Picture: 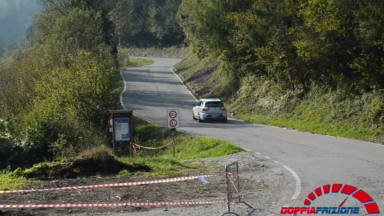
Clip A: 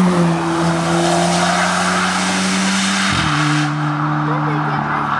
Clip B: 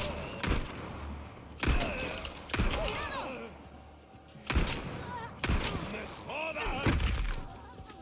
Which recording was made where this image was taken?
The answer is A